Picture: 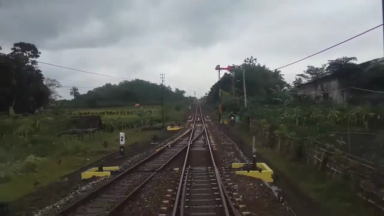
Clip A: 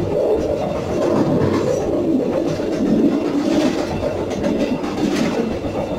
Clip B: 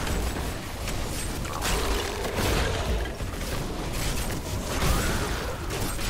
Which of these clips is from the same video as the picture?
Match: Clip A